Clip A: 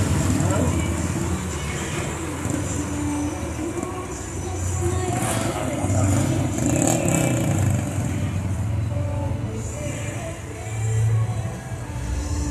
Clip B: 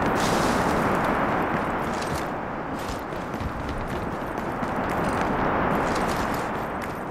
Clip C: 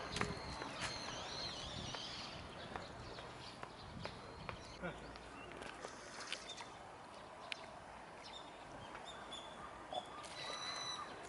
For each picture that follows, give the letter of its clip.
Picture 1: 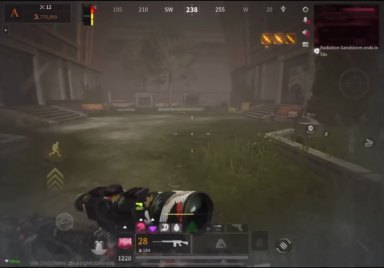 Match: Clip B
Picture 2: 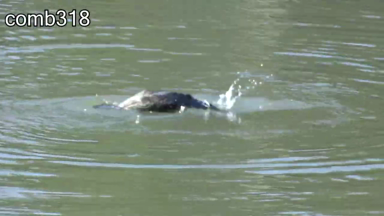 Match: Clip C